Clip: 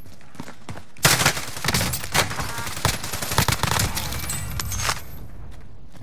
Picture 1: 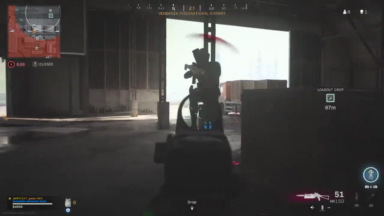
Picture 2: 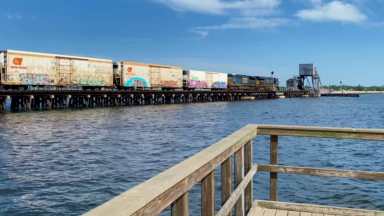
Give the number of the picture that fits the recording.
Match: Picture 1